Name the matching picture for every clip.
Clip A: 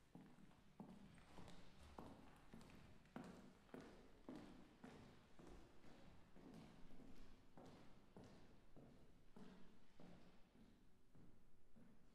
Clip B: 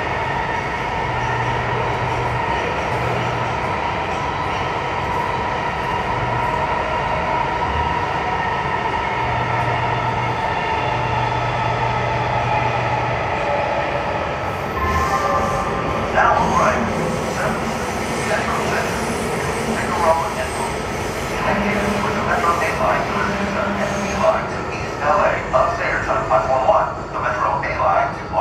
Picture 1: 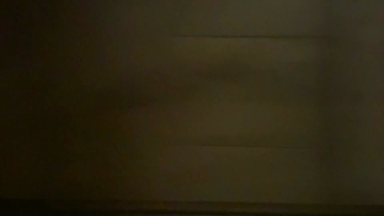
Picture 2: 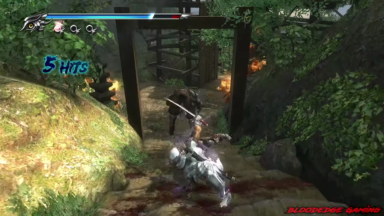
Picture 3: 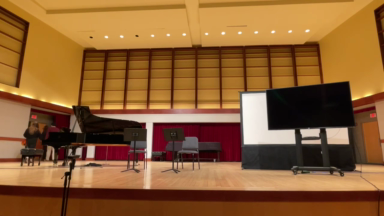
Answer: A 3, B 1